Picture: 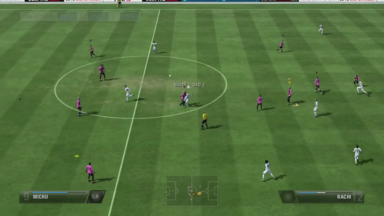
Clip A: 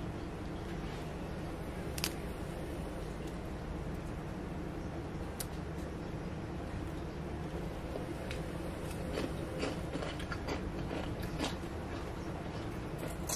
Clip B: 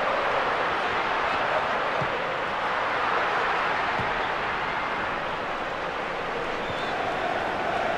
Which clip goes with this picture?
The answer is B